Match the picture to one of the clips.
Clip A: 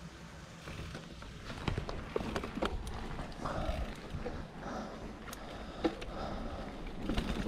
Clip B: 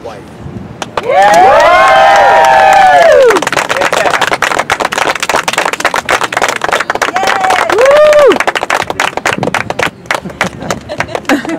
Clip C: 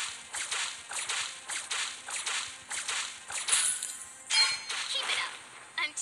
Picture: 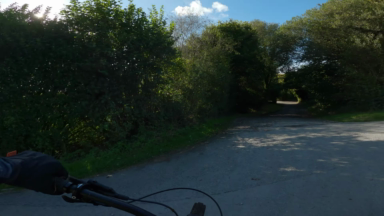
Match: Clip A